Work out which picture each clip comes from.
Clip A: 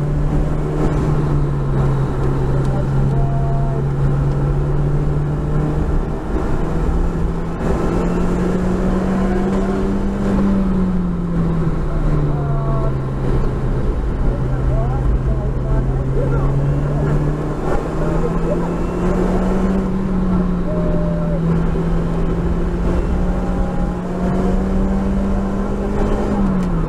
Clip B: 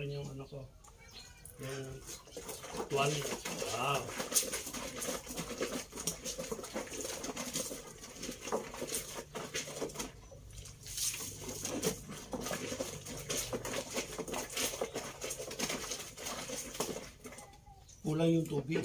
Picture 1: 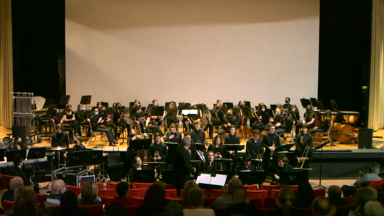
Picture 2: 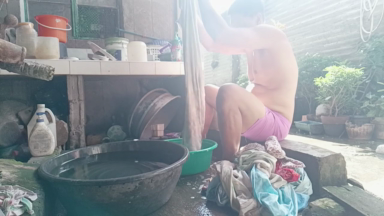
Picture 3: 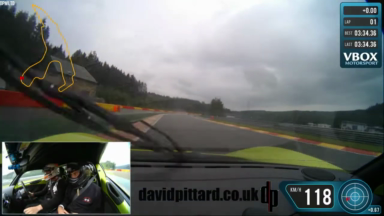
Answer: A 3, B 2